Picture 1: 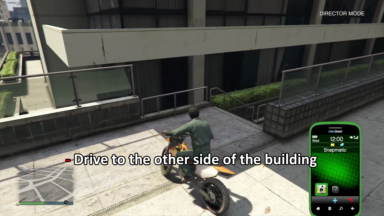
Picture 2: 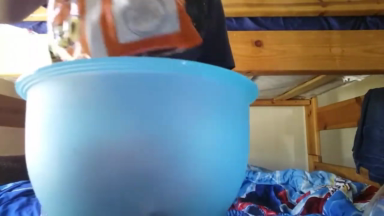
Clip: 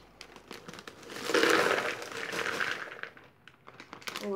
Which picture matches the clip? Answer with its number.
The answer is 2